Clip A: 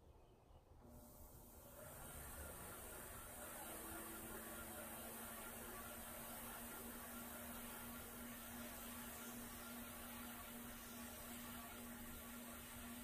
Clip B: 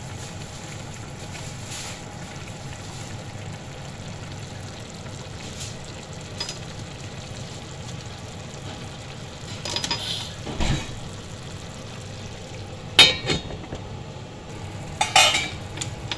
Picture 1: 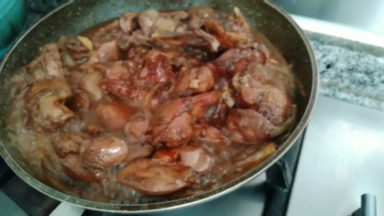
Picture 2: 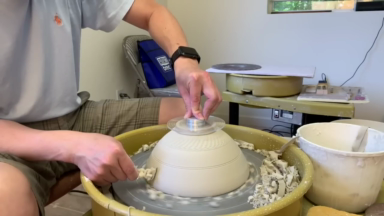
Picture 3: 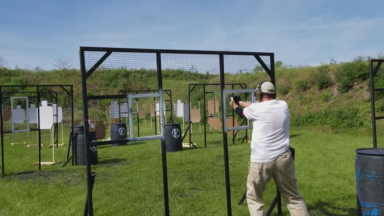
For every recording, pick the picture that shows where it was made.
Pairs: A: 2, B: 1